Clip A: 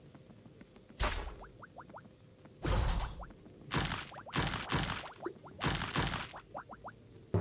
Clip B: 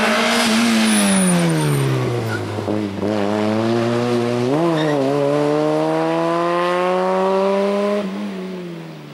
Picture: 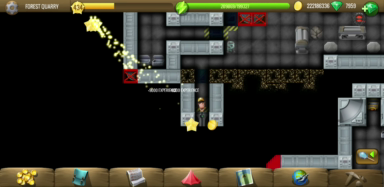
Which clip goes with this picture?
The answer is A